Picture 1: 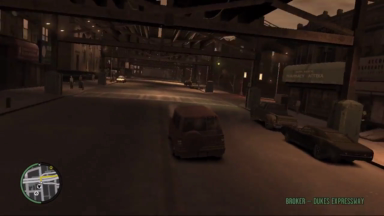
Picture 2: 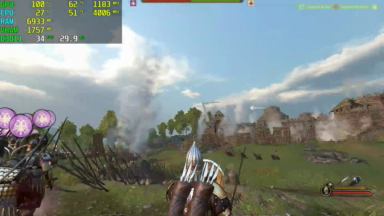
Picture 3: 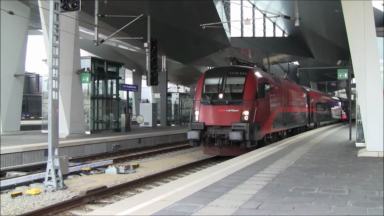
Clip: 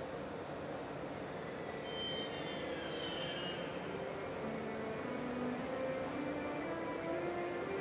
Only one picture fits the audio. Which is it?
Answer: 3